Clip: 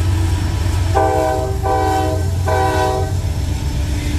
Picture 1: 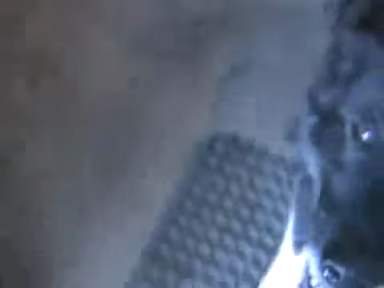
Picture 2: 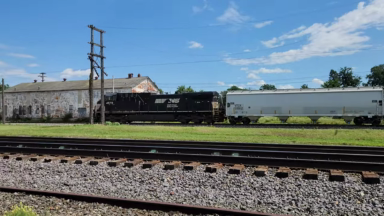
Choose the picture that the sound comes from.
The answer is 2